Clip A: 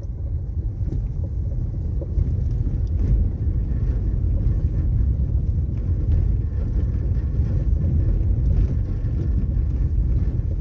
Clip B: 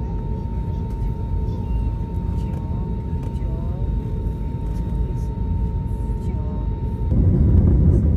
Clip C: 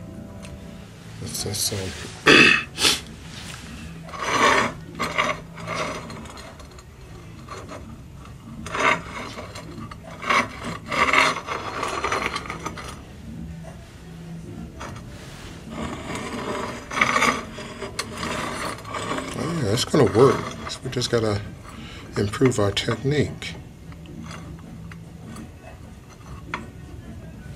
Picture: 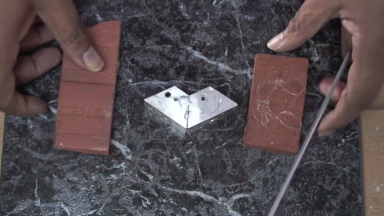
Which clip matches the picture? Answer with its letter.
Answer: C